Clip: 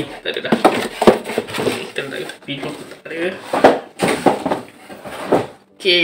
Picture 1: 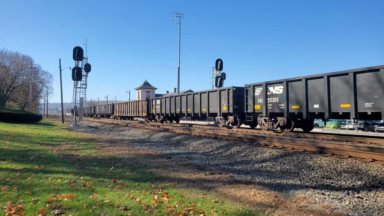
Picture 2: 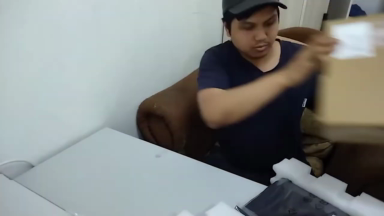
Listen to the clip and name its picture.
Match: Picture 2